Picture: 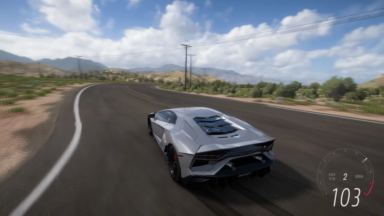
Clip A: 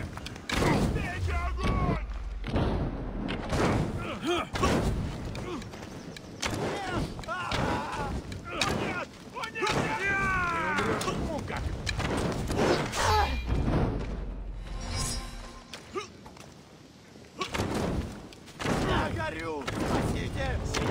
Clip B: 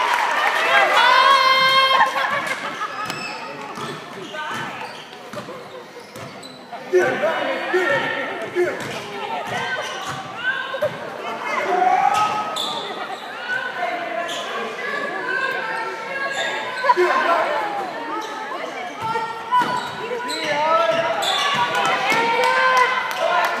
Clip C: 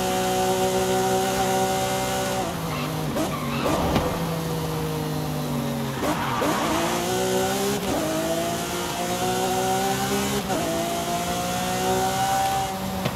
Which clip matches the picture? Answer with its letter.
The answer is C